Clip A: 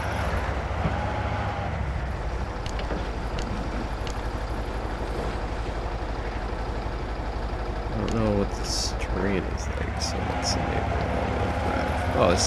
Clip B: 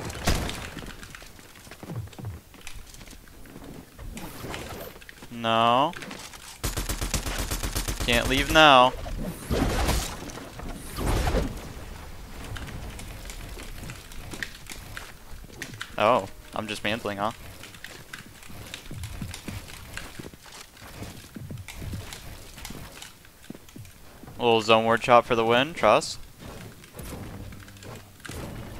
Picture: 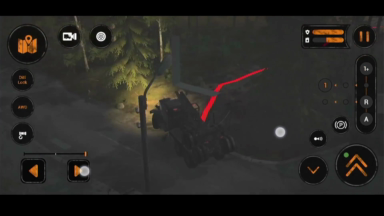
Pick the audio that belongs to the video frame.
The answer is A